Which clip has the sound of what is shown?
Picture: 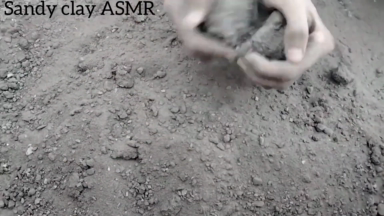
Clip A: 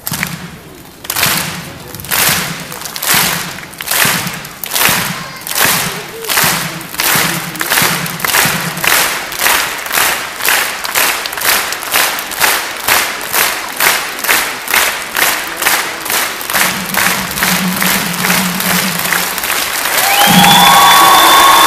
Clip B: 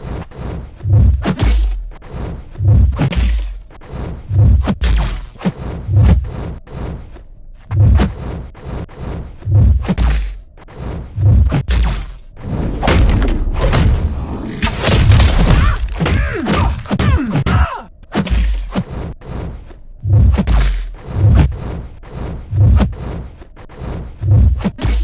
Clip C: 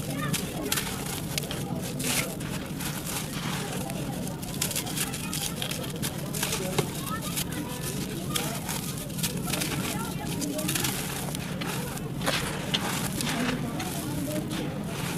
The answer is C